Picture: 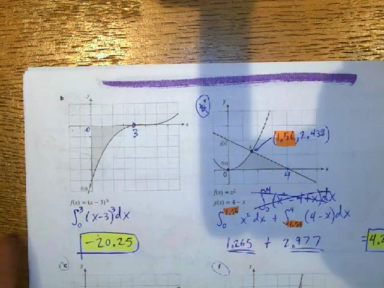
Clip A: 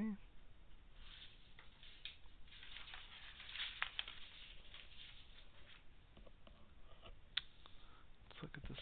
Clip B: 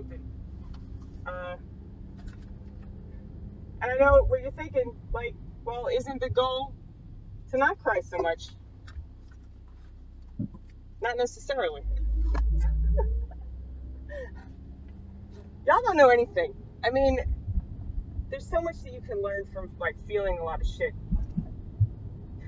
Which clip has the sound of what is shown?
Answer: A